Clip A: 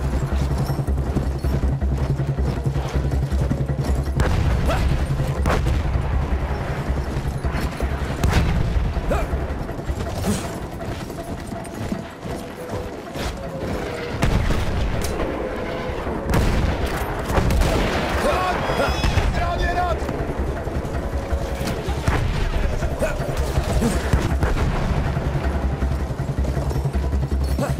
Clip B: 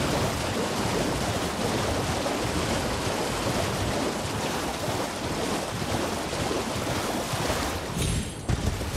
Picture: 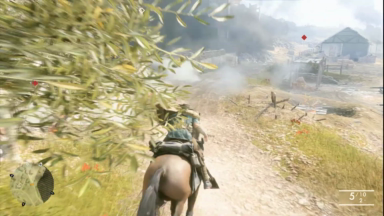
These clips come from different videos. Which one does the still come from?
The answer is A